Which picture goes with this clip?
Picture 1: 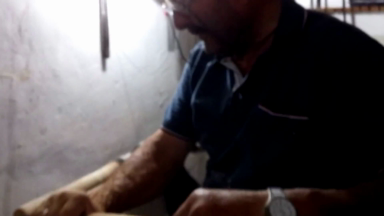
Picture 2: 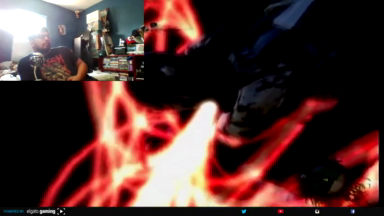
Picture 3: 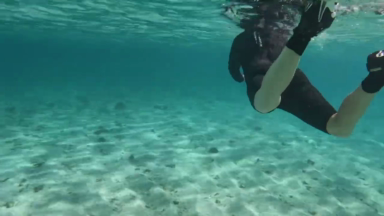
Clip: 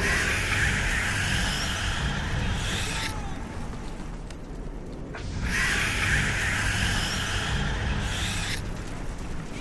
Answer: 2